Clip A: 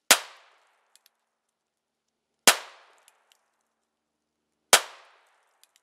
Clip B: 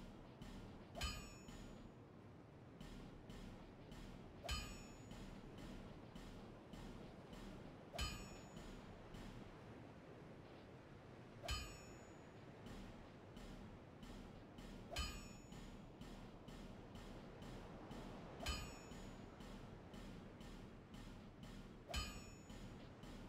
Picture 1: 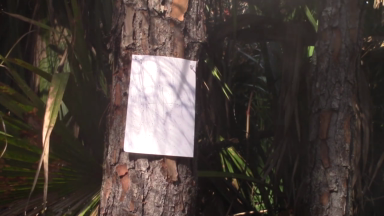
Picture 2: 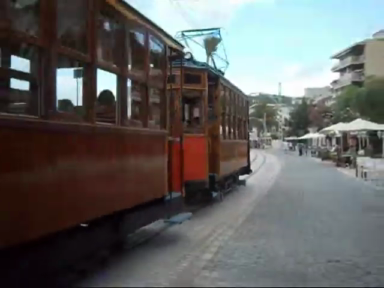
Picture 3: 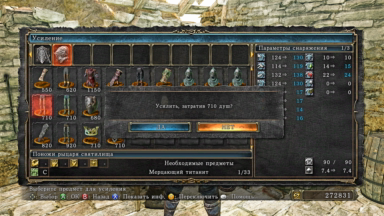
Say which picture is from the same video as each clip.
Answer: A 1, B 3